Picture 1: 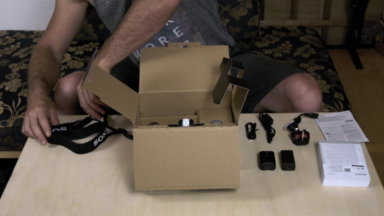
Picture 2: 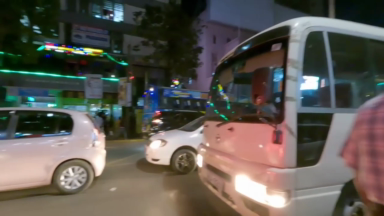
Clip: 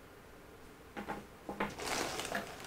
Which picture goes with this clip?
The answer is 1